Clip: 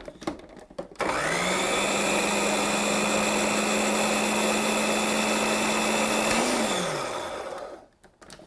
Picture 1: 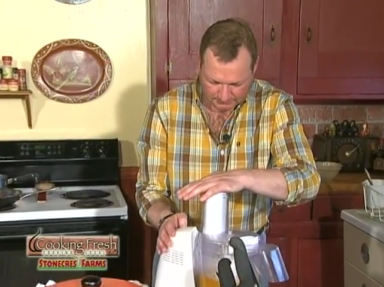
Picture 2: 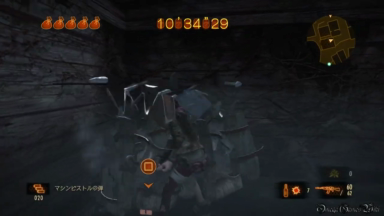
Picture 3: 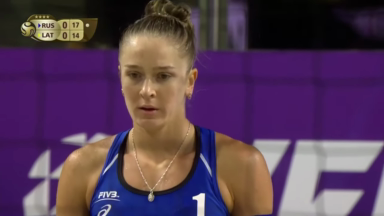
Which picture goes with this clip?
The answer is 1